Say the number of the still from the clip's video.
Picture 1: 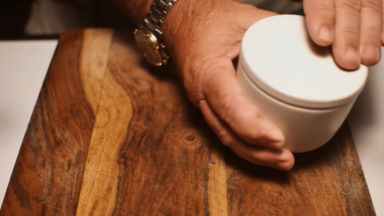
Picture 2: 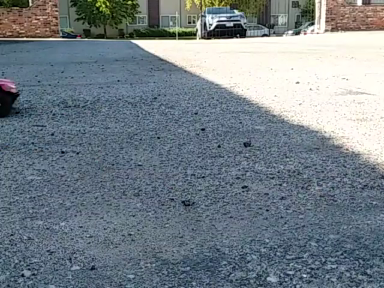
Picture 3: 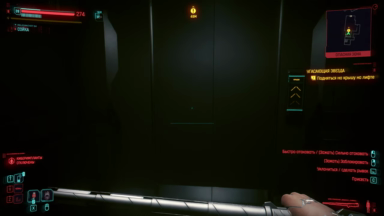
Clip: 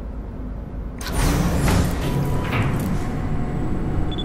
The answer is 3